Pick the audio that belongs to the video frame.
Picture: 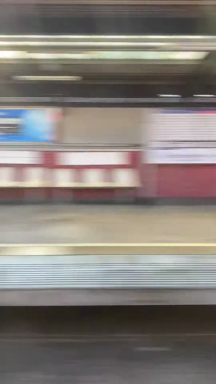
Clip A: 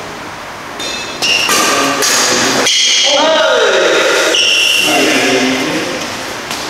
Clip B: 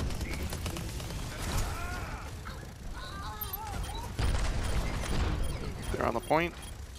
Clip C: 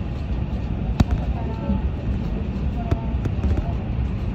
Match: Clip C